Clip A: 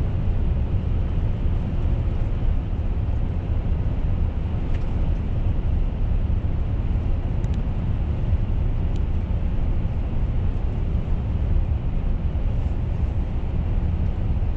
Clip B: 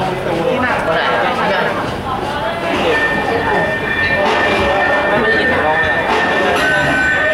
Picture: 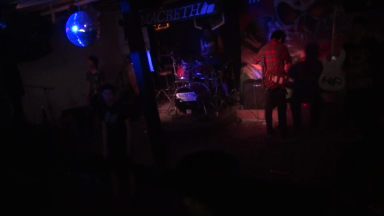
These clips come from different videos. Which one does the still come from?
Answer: B